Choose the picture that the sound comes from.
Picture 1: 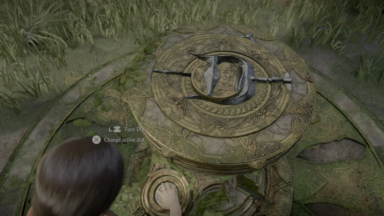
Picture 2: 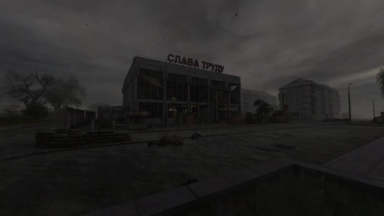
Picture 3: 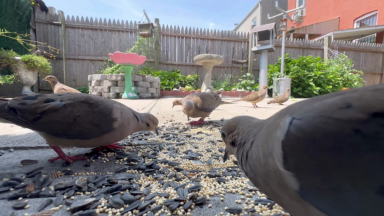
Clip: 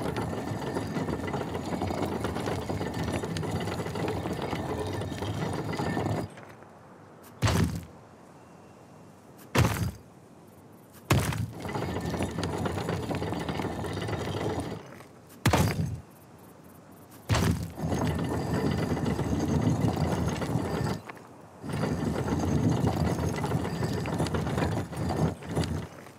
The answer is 1